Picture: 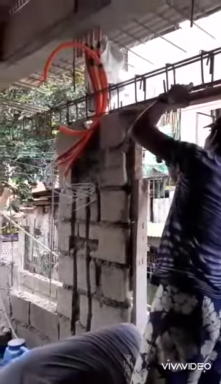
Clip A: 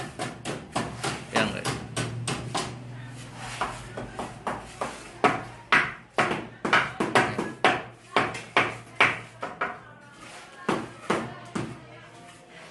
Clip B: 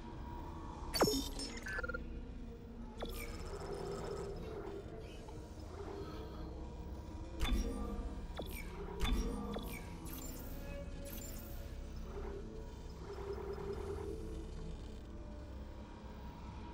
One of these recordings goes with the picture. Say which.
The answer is A